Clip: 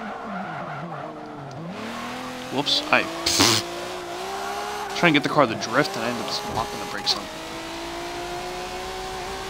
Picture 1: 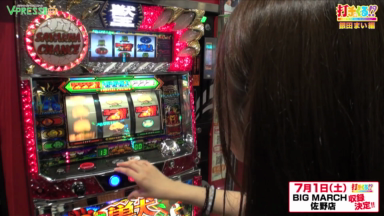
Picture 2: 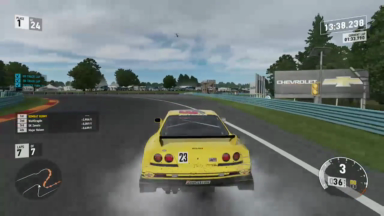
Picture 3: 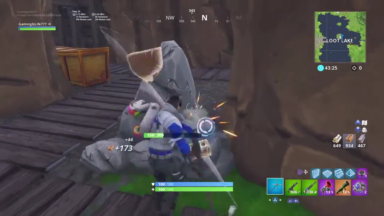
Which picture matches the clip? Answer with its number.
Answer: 2